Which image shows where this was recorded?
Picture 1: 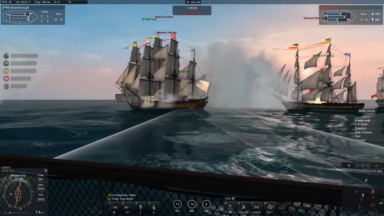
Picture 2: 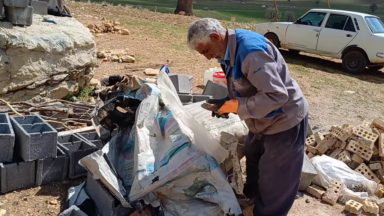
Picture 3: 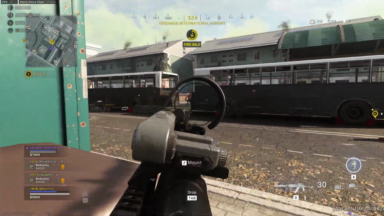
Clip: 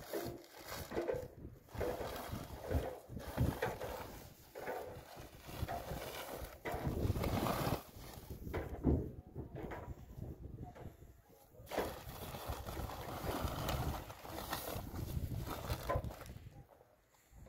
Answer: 2